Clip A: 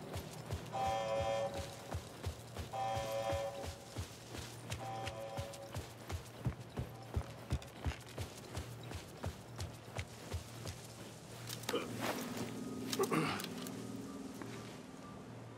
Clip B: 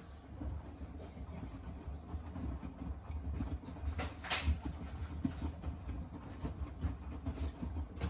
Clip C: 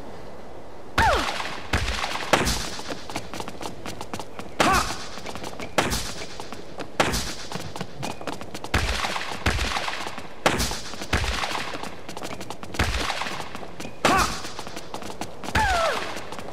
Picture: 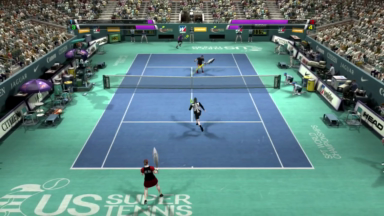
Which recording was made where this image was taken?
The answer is C